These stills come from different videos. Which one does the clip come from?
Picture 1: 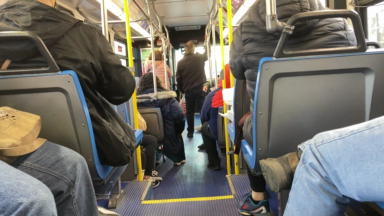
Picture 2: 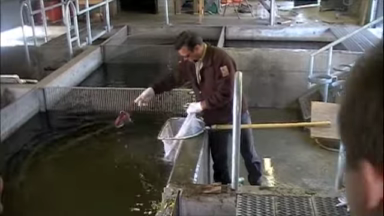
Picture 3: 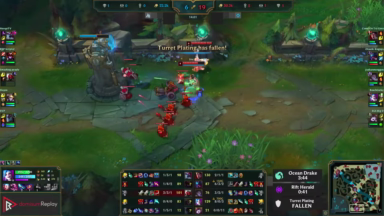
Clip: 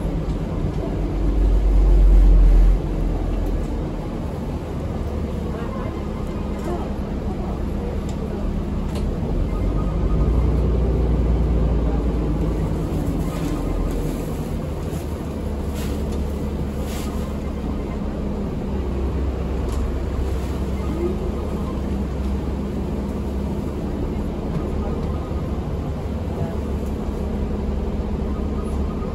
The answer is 1